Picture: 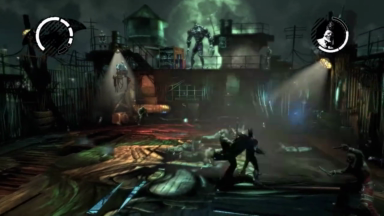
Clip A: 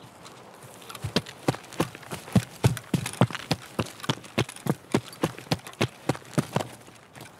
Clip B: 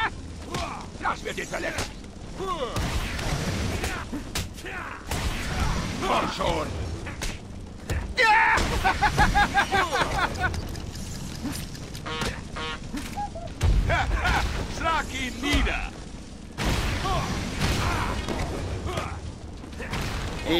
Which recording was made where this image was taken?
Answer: B